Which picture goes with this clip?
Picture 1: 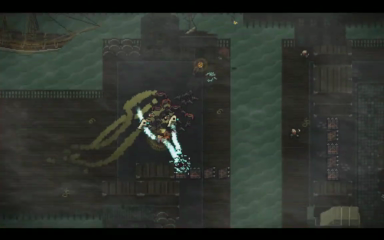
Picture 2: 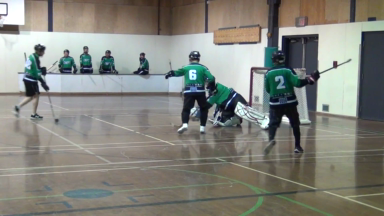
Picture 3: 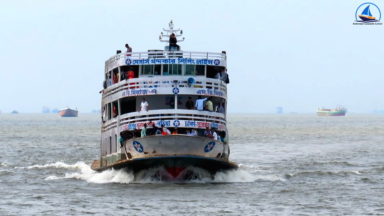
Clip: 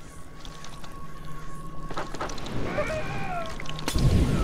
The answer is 1